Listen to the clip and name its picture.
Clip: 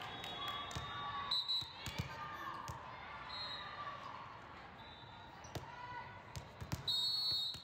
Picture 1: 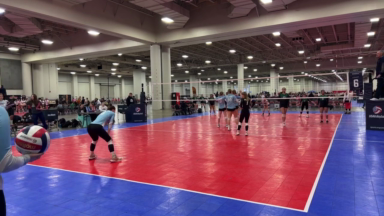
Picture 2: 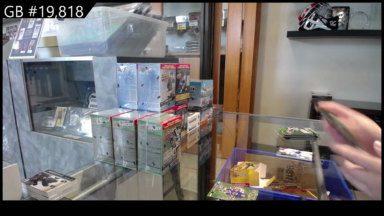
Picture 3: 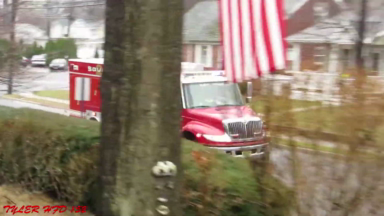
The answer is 1